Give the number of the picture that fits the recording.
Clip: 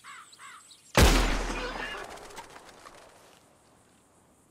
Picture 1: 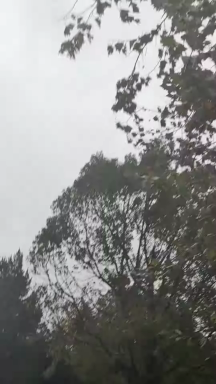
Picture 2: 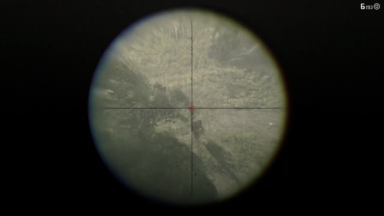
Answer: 2